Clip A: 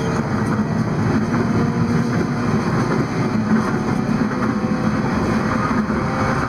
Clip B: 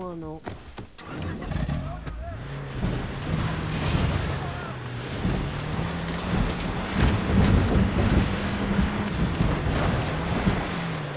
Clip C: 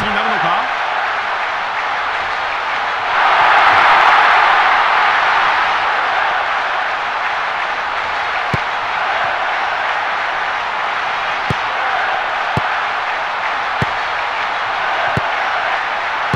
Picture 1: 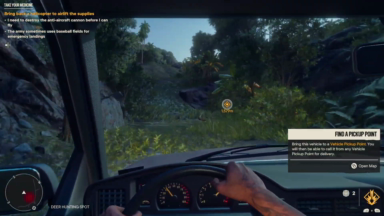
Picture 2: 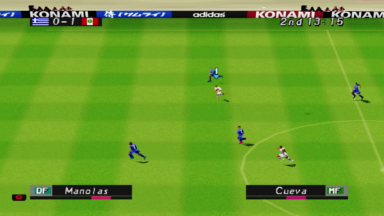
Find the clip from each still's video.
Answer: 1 B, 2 C